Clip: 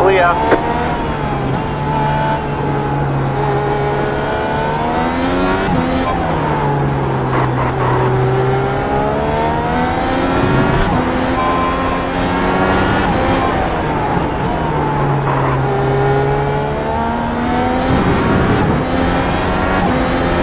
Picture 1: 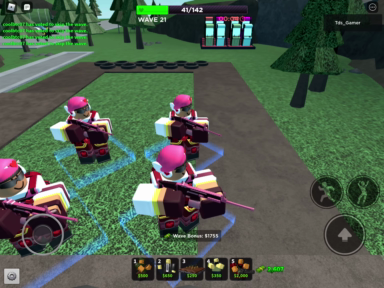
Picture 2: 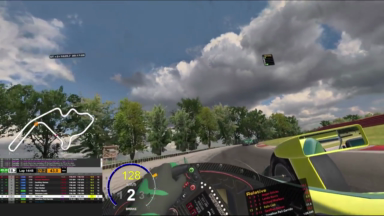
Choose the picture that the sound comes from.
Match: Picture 2